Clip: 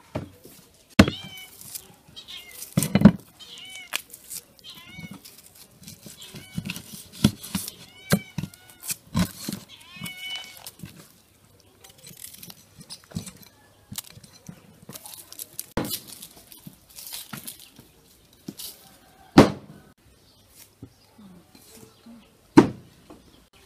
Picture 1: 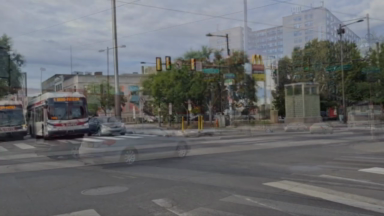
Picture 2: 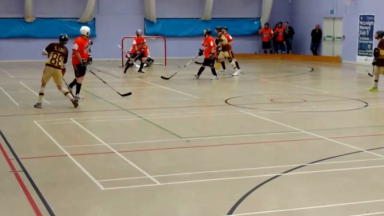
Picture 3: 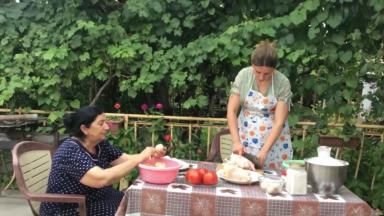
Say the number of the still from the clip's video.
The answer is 3